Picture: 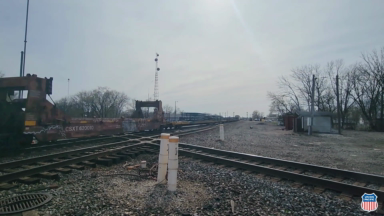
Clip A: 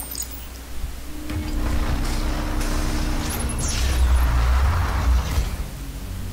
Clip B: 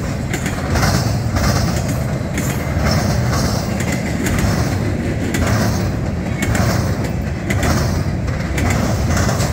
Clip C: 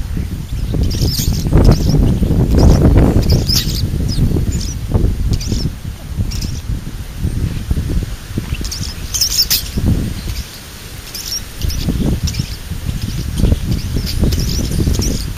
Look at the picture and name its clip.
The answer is B